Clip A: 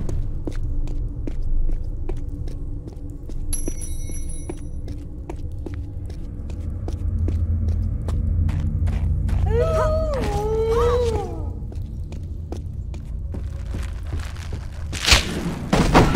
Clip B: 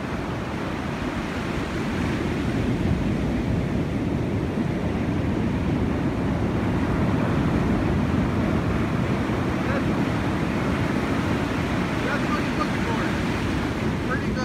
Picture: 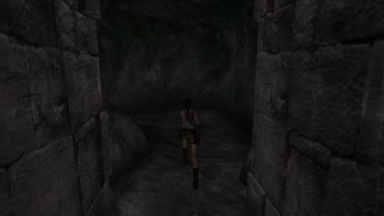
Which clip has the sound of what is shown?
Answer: A